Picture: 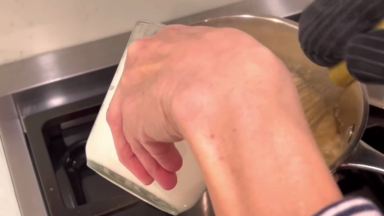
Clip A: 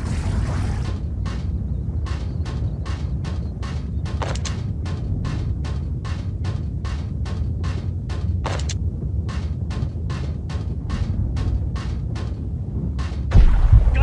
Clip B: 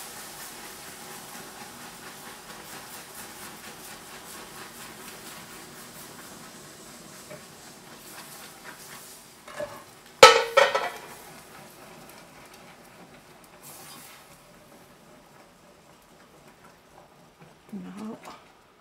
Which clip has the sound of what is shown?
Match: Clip B